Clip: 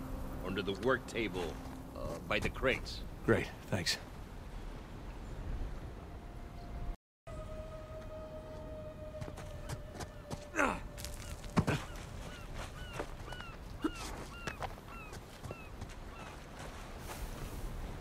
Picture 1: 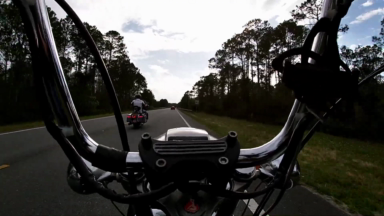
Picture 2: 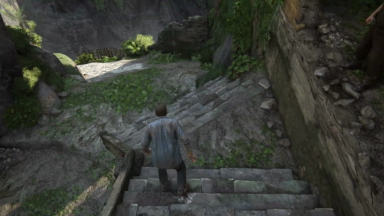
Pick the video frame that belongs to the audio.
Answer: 2